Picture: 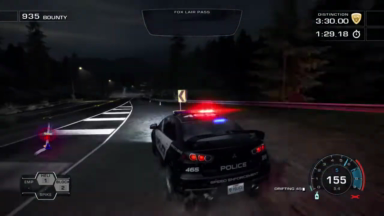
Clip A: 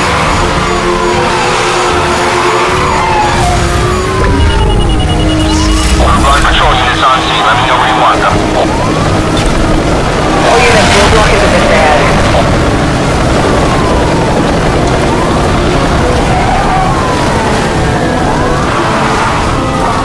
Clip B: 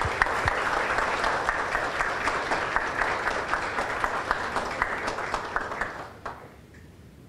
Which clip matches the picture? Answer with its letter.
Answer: A